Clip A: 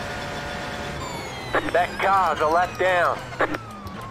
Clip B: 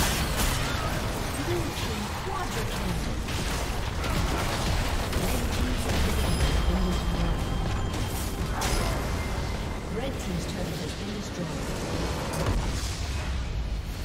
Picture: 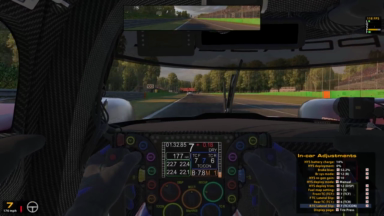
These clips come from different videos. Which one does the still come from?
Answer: A